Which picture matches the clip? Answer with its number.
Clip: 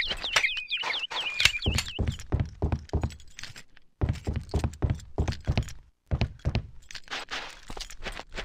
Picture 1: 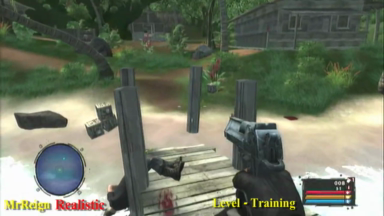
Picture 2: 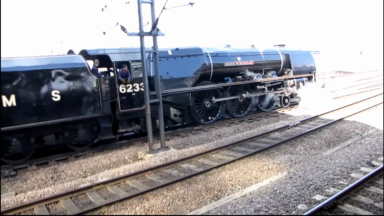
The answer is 1